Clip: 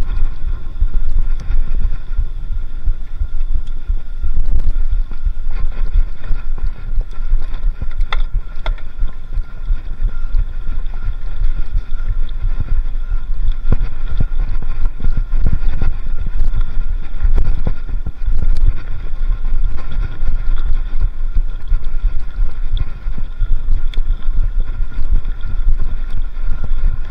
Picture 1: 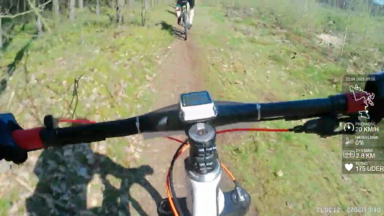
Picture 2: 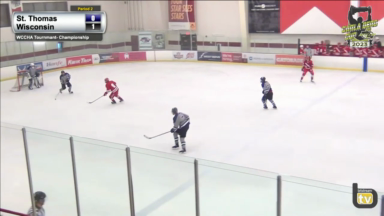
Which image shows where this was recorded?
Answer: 1